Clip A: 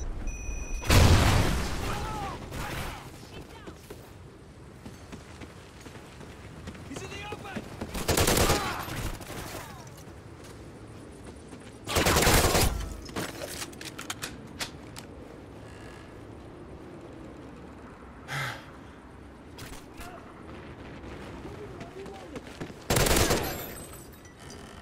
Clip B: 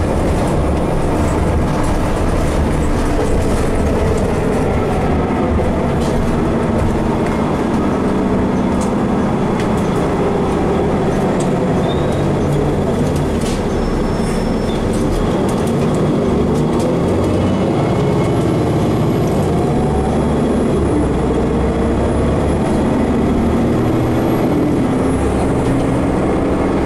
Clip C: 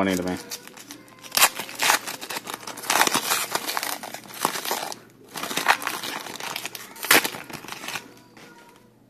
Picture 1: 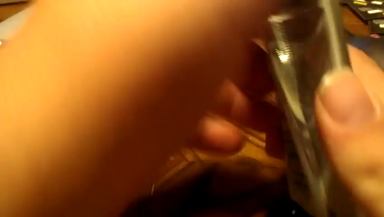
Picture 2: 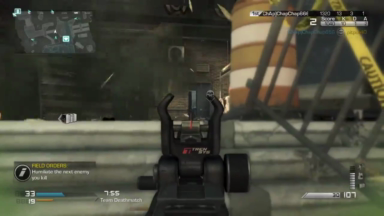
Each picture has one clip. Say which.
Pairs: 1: C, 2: A